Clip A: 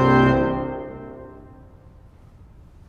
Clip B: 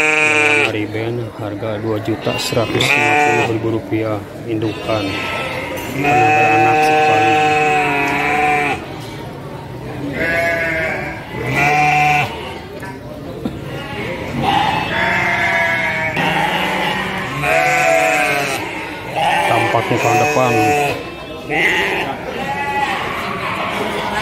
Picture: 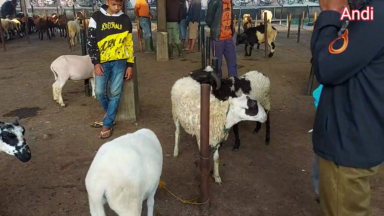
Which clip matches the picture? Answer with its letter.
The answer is B